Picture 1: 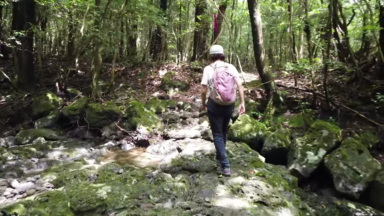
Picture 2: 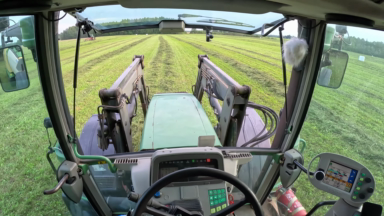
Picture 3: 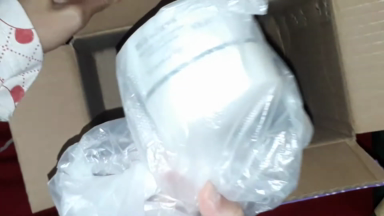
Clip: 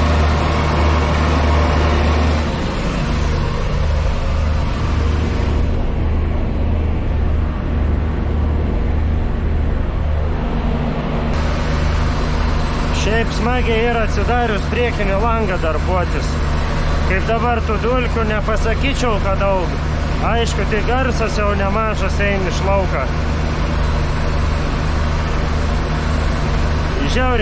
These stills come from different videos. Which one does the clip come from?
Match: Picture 2